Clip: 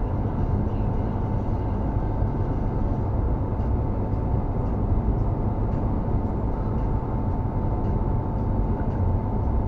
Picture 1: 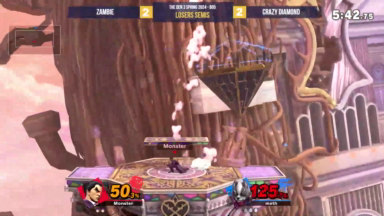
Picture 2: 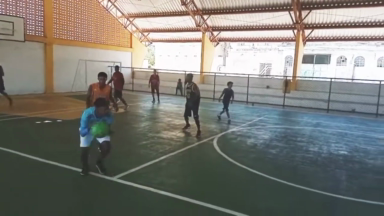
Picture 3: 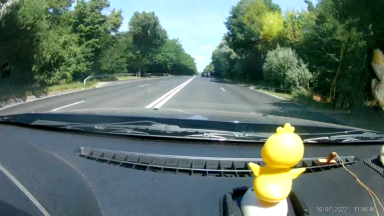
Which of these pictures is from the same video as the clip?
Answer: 3